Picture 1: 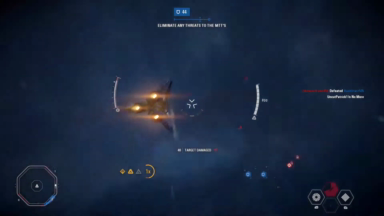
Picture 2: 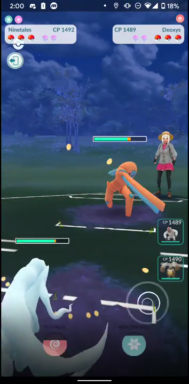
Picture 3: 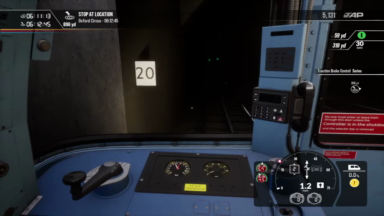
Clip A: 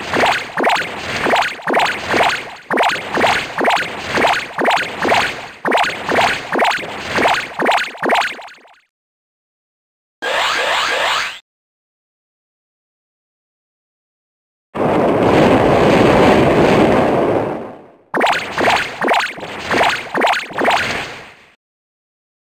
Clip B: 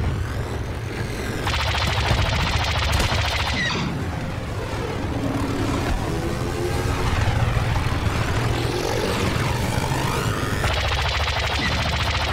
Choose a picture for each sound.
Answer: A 2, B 1